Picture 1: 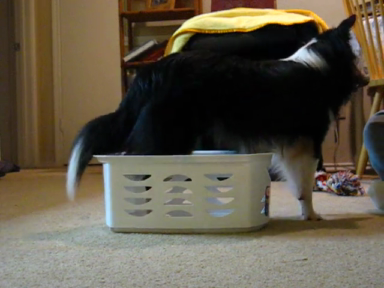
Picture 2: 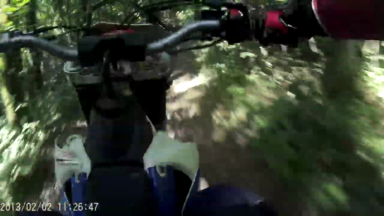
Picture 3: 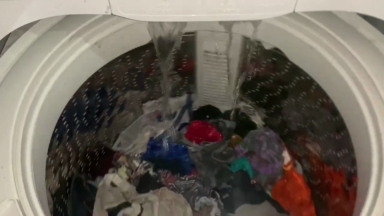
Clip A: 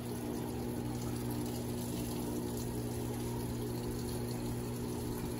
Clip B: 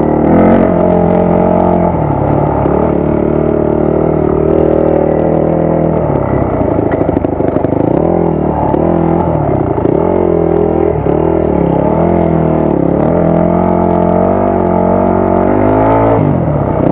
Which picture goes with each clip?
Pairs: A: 3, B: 2